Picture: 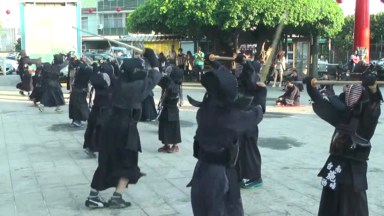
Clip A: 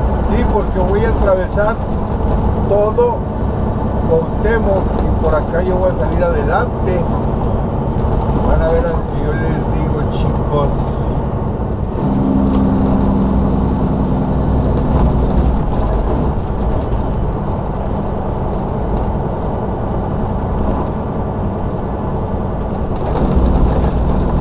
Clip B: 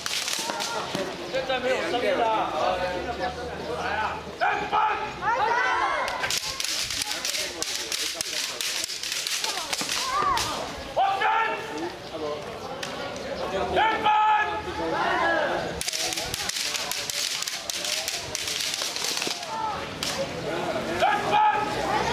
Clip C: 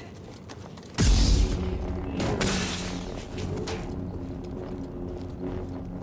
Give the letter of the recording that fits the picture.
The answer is B